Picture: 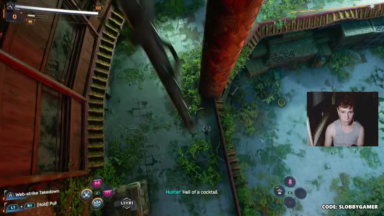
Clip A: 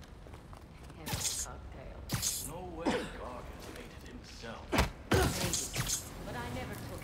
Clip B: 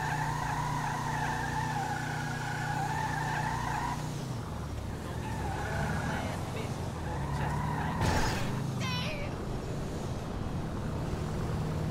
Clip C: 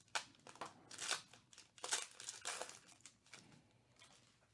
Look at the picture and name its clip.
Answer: A